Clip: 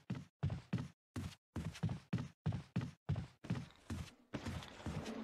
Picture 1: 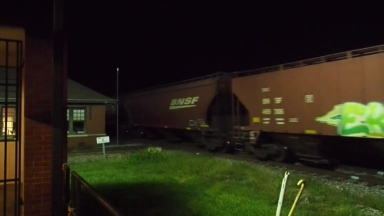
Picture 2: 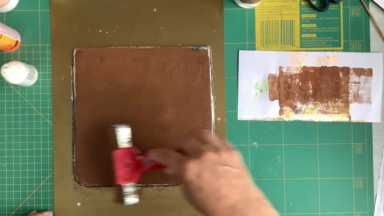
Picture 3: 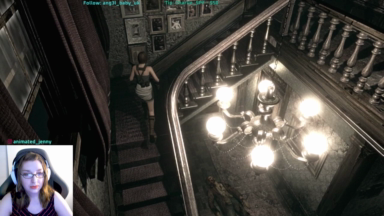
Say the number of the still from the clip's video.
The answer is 3